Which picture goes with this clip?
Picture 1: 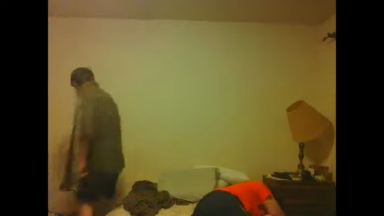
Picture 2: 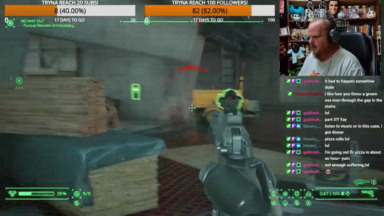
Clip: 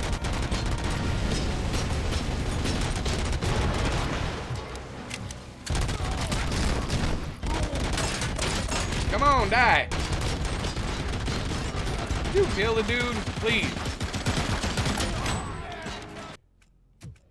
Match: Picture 2